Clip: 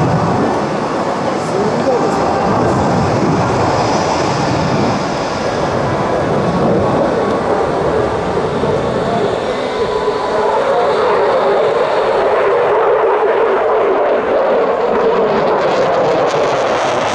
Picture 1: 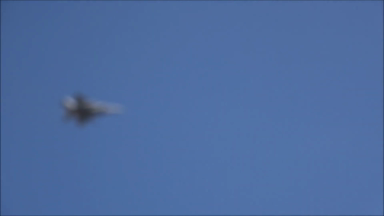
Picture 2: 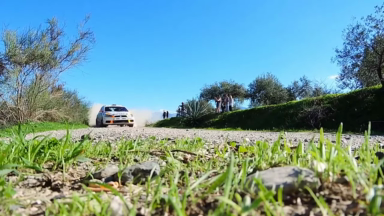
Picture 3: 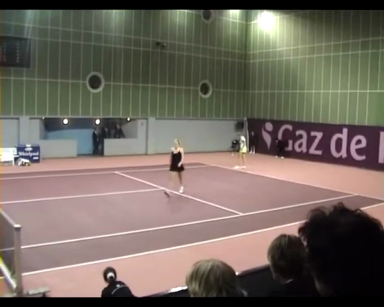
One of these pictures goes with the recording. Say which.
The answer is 1